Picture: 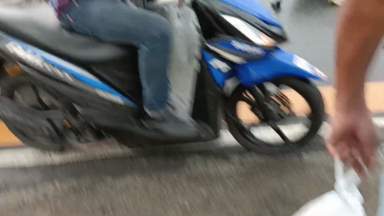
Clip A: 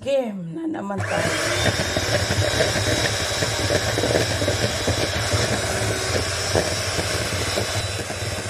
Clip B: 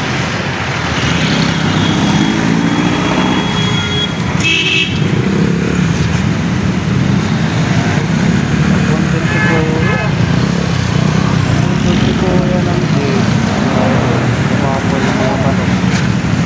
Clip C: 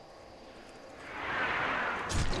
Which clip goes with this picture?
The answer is B